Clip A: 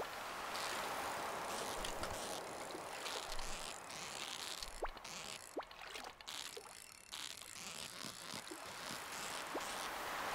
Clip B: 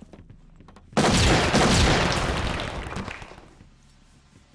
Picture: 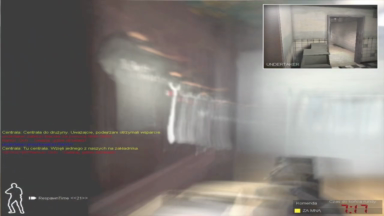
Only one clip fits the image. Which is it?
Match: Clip B